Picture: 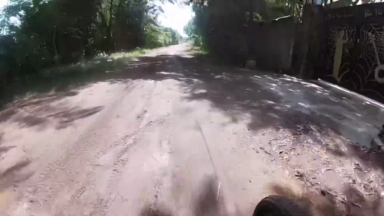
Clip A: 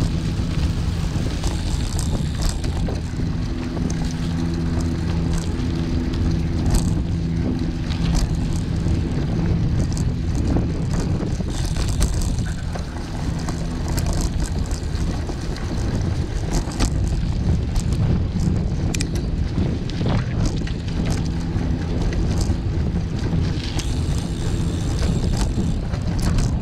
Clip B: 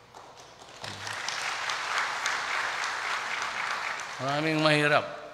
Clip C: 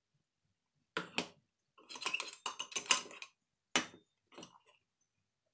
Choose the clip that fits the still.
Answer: A